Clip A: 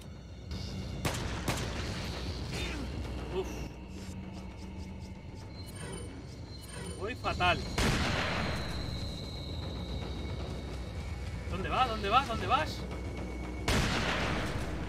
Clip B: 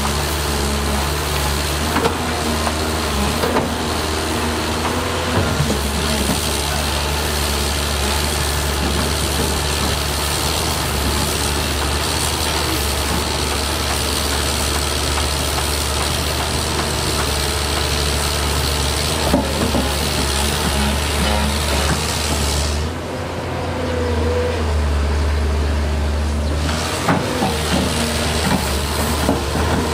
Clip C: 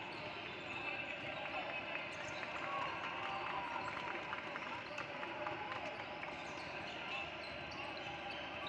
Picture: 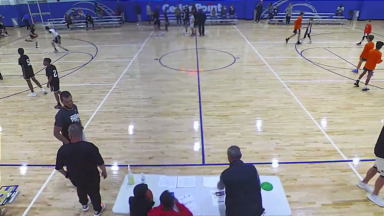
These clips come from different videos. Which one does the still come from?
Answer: C